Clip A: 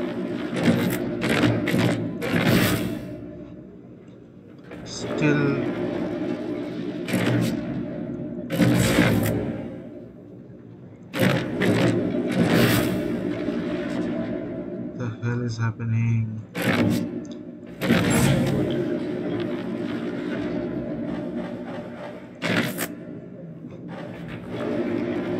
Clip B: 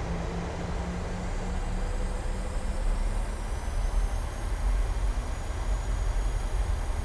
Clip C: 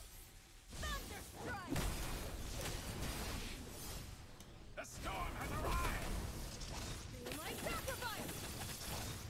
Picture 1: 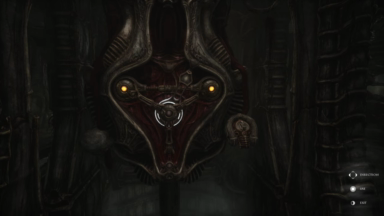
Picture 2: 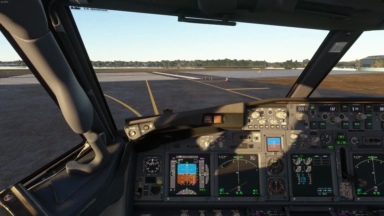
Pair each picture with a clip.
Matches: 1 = A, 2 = B